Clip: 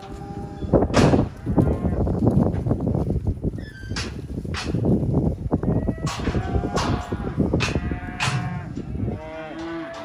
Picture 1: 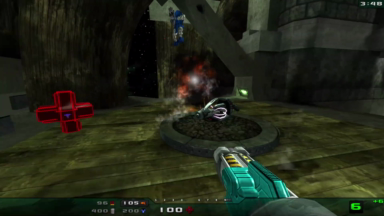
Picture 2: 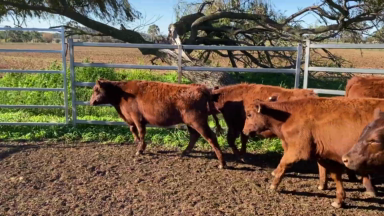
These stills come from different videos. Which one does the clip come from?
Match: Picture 2